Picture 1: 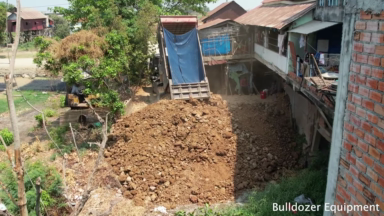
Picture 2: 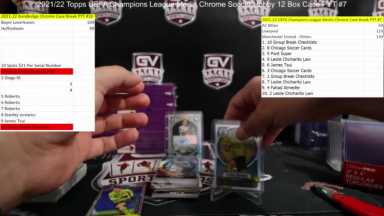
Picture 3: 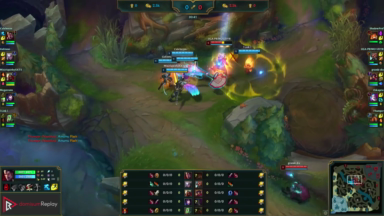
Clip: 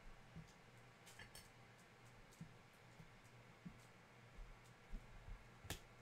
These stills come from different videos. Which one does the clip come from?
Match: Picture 2